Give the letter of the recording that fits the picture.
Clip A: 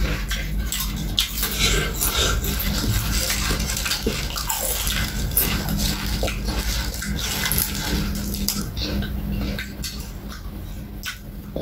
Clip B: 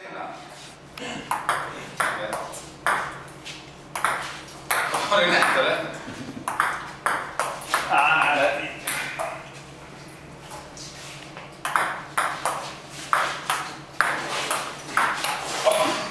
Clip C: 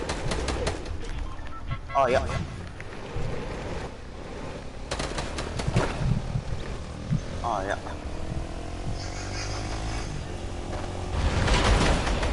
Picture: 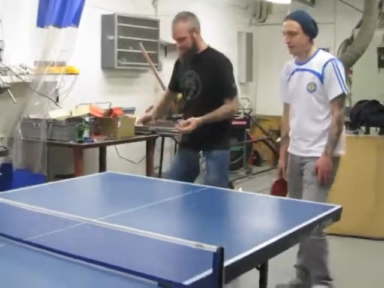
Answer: B